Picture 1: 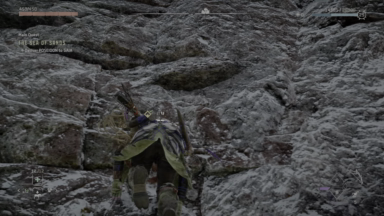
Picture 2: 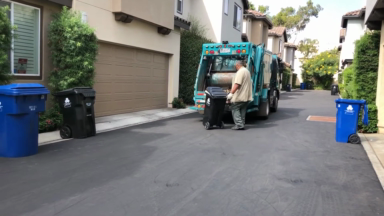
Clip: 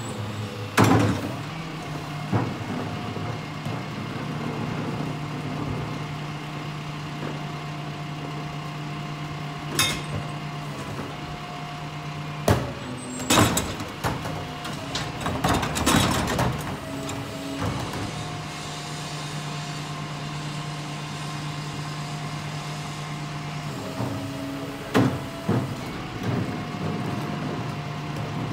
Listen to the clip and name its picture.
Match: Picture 2